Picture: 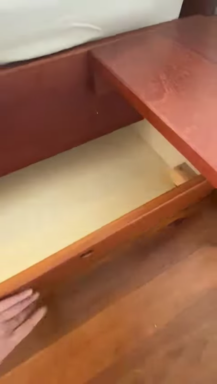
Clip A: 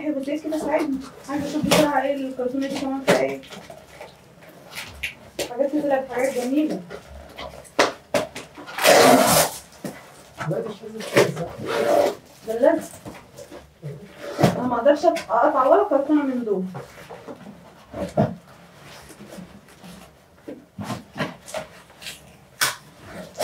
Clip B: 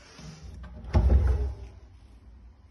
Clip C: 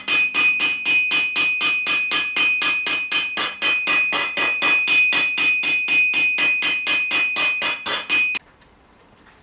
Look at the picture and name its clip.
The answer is B